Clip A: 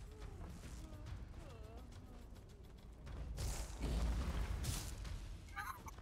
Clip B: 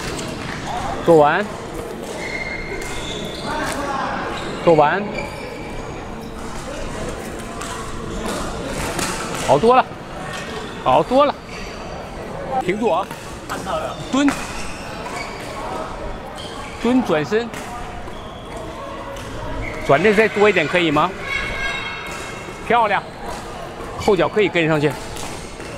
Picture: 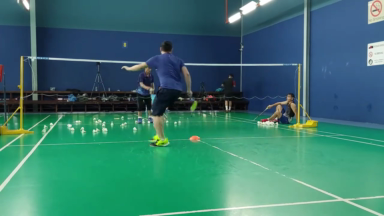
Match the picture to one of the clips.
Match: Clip B